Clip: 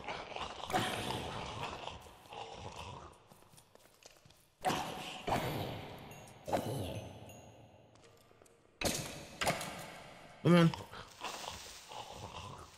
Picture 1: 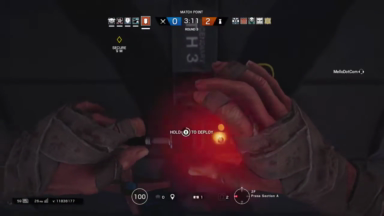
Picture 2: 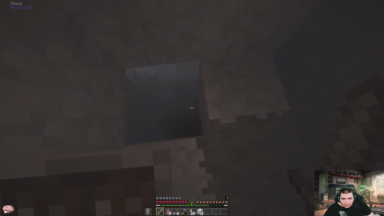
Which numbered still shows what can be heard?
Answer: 2